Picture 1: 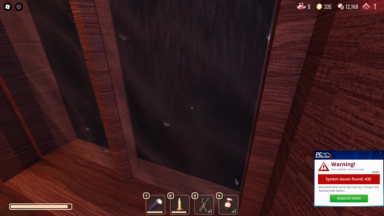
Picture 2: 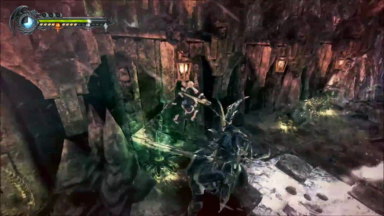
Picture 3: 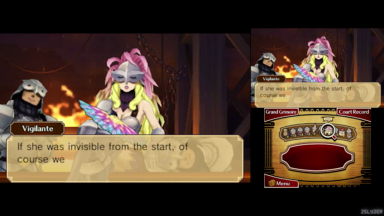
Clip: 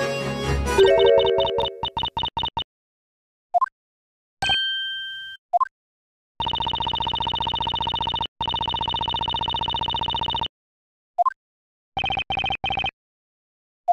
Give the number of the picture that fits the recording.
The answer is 3